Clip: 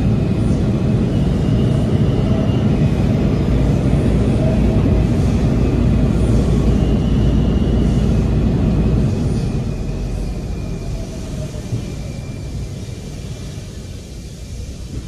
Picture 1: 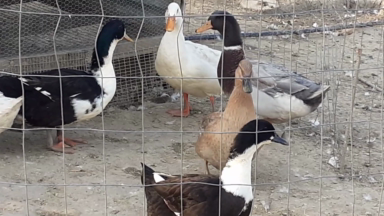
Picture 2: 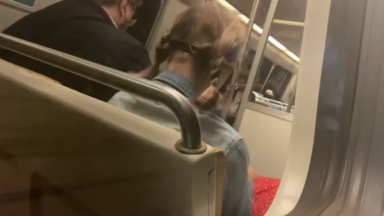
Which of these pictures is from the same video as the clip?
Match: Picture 2